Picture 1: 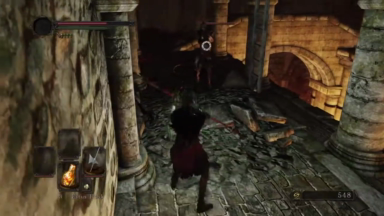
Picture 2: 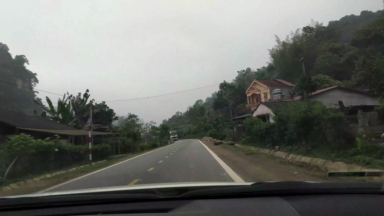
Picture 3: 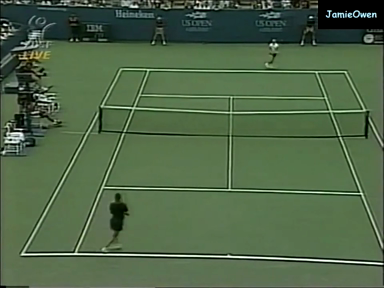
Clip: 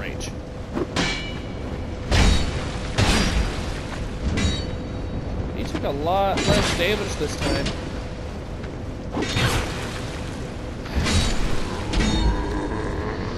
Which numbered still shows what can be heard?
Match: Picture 1